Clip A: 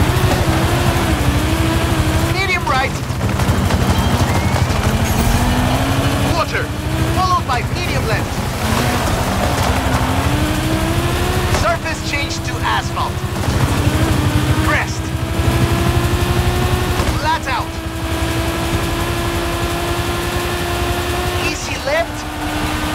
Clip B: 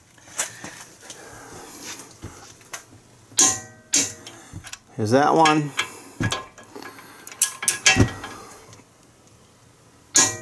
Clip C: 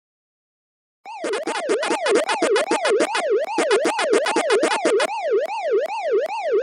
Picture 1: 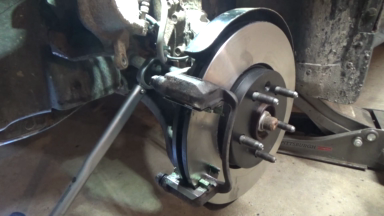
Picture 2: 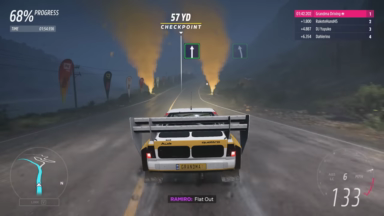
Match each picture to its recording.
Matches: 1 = B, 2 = A